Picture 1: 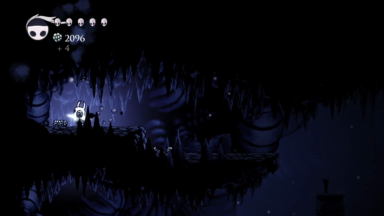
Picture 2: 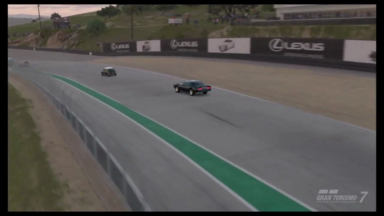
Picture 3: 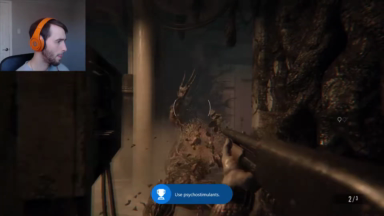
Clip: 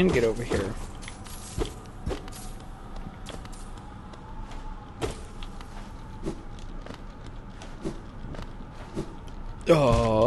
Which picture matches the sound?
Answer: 1